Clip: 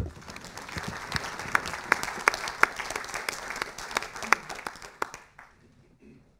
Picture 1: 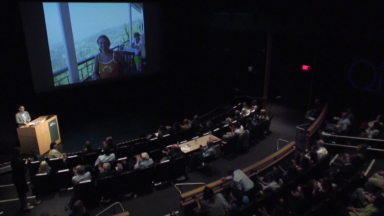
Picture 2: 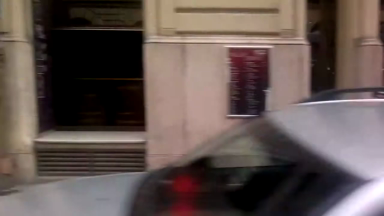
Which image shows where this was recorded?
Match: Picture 1